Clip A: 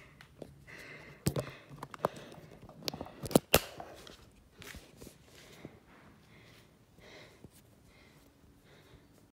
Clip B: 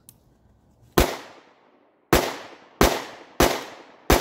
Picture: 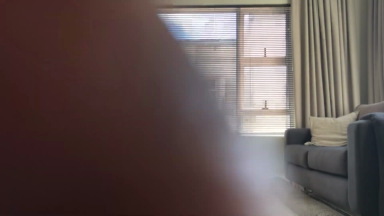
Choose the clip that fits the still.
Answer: A